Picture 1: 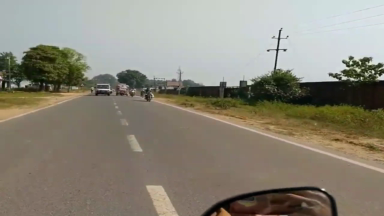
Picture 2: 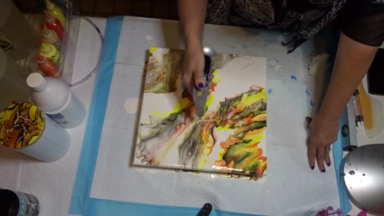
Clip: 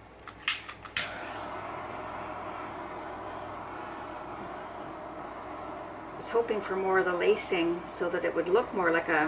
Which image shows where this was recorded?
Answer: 2